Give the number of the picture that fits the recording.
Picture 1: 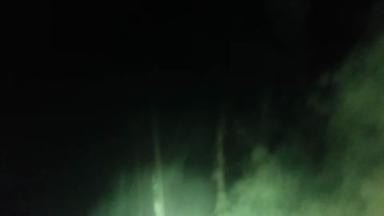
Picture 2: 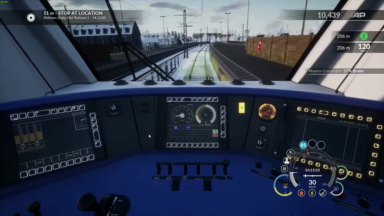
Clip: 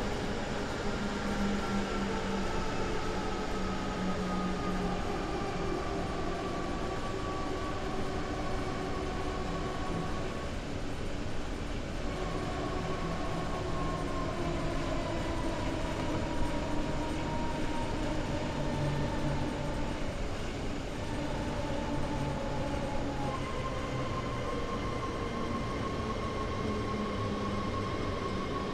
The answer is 2